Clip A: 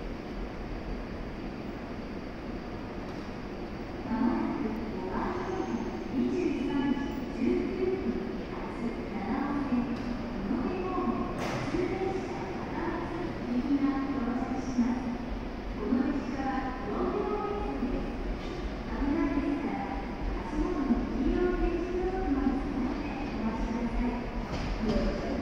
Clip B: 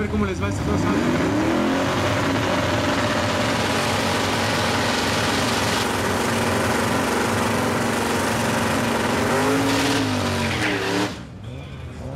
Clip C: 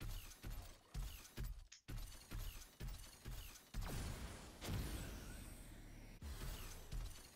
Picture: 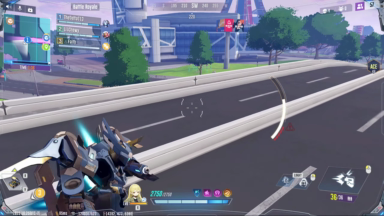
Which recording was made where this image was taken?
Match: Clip C